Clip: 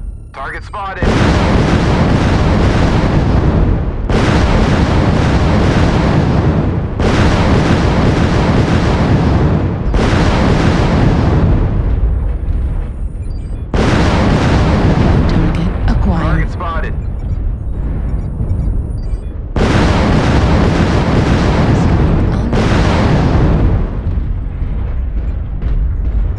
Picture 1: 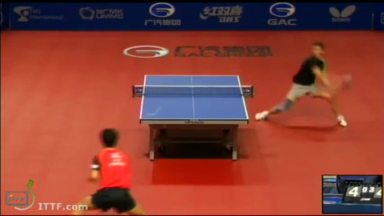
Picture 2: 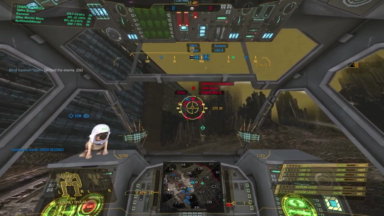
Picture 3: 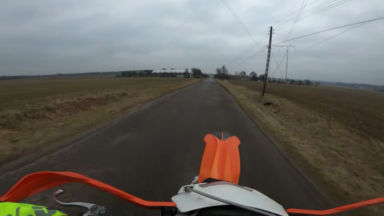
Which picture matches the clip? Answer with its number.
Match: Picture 2